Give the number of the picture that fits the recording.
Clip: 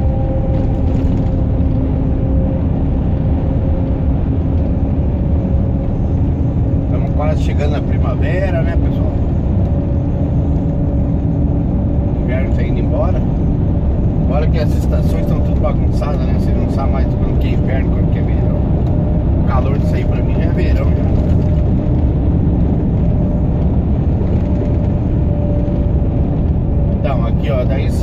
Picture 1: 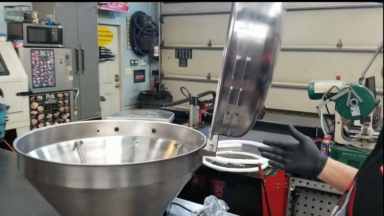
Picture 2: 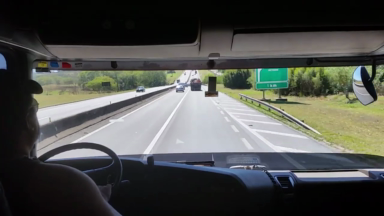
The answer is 2